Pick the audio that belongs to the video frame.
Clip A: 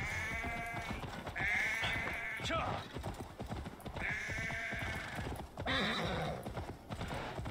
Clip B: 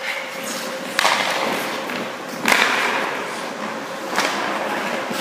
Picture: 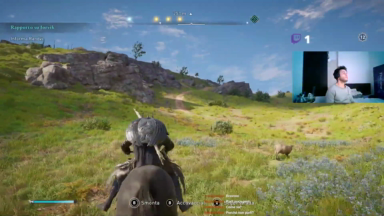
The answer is A